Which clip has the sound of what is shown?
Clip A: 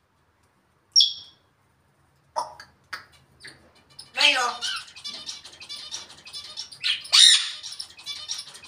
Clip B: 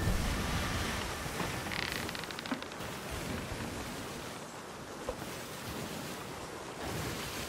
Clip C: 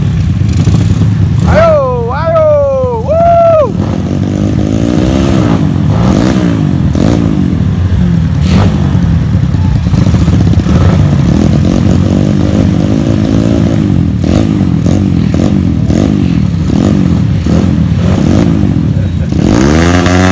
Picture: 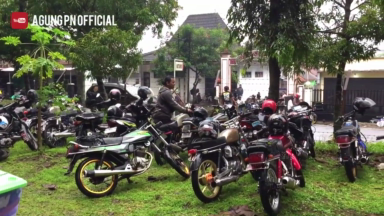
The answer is C